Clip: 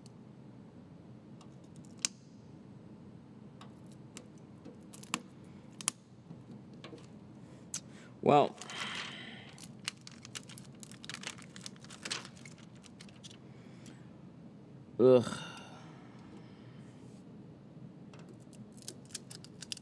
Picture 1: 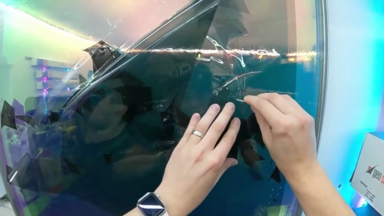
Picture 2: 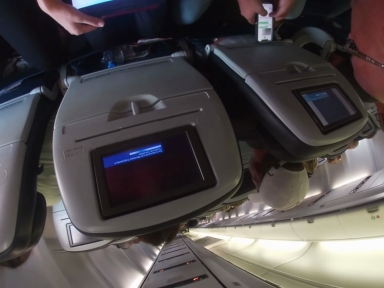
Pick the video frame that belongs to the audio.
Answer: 1